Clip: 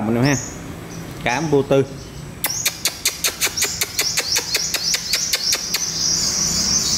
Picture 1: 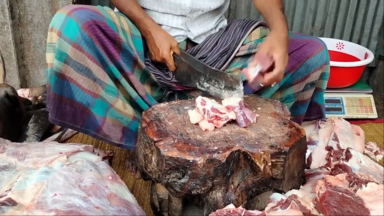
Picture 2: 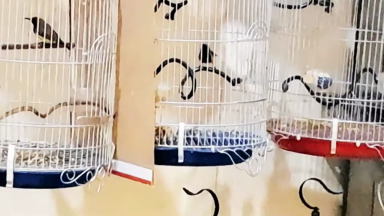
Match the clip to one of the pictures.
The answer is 2